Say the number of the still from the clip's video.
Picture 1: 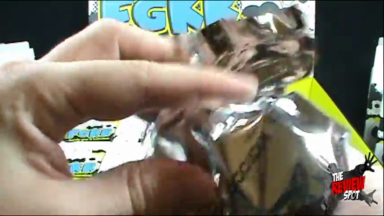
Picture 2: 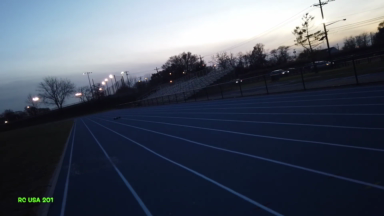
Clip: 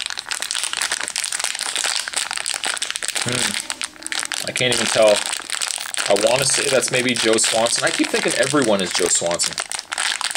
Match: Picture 1